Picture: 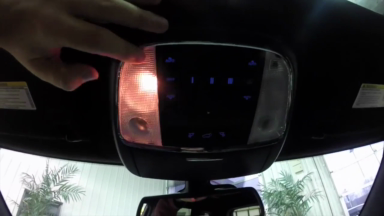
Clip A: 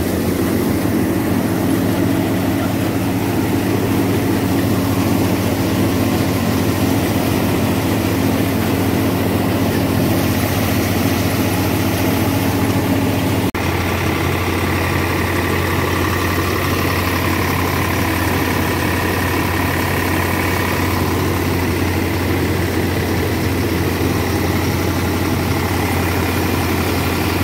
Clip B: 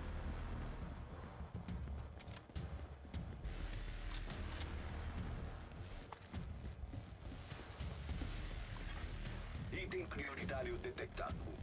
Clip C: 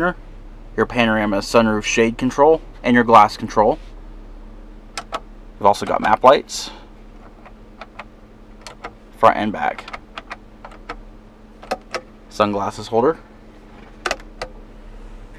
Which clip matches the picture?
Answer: C